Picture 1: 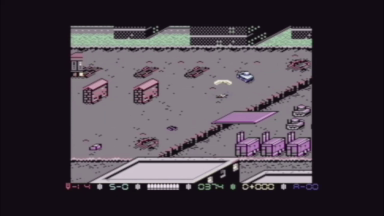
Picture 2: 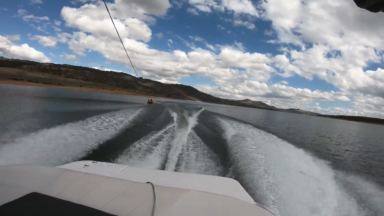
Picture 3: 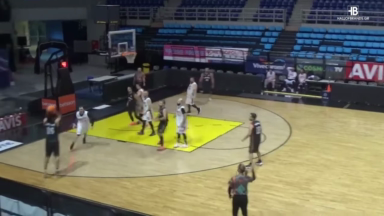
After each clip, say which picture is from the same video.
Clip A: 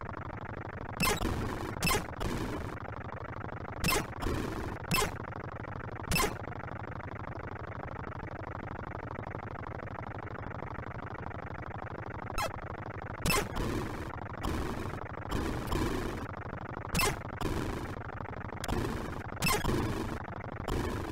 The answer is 1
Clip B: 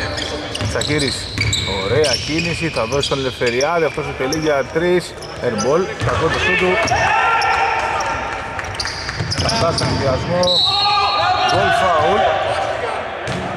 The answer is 3